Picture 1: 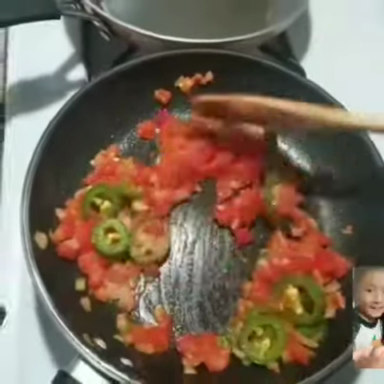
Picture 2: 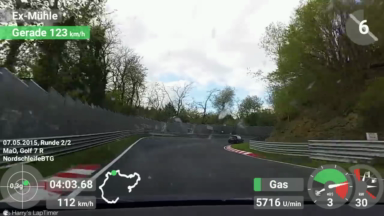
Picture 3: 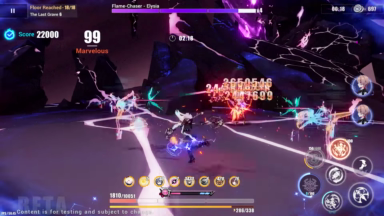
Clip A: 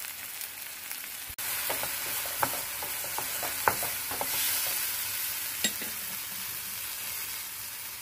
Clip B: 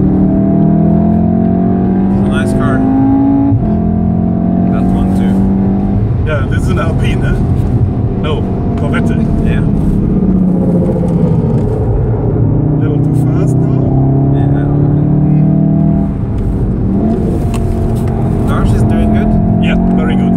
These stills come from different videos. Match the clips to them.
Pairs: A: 1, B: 2